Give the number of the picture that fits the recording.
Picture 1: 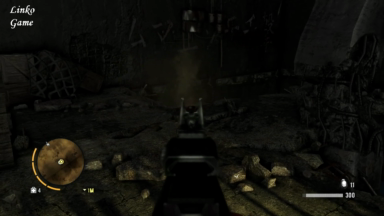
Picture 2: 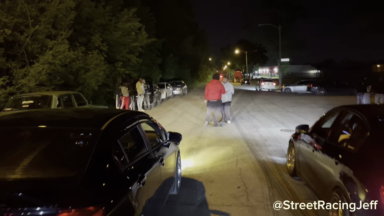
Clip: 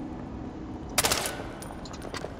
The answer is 1